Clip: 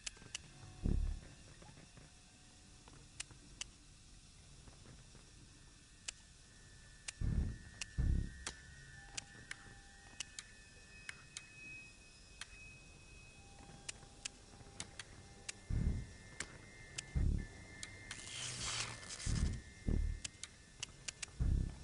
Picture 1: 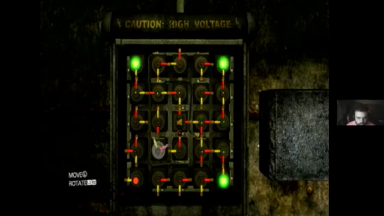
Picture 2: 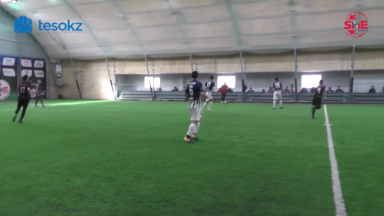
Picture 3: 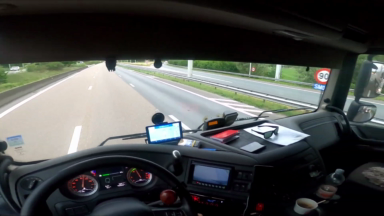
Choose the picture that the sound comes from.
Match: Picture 1